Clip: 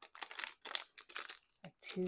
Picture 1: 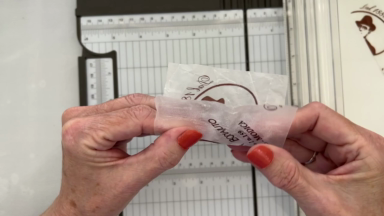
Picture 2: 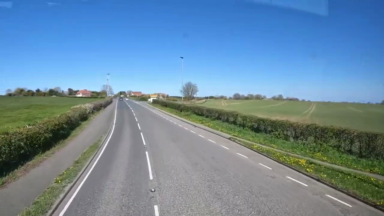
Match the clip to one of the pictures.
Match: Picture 1